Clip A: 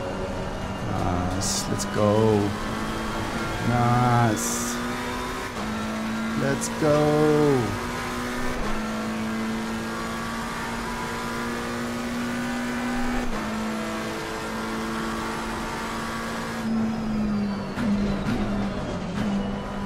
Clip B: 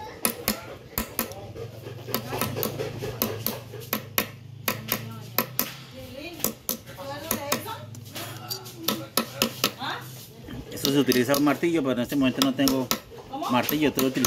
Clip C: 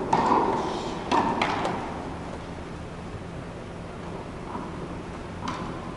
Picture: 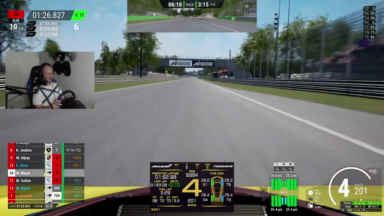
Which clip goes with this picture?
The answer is A